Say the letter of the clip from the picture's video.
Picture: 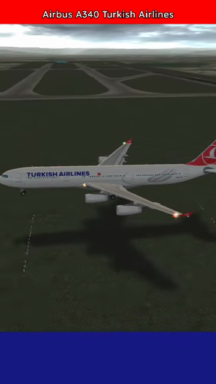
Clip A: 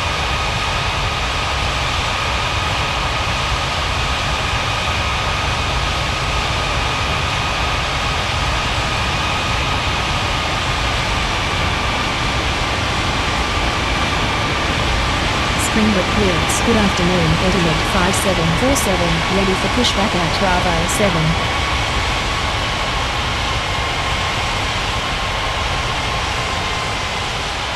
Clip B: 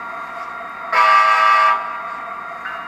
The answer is A